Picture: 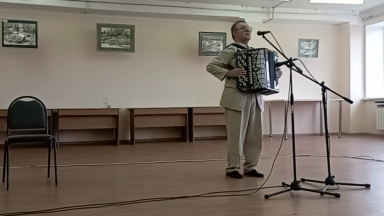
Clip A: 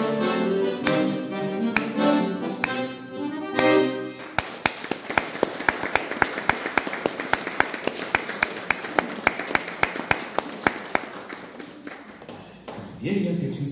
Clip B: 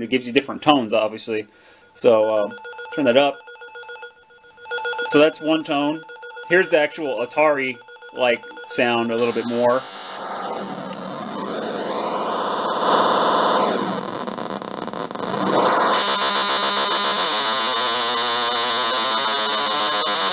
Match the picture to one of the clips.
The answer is A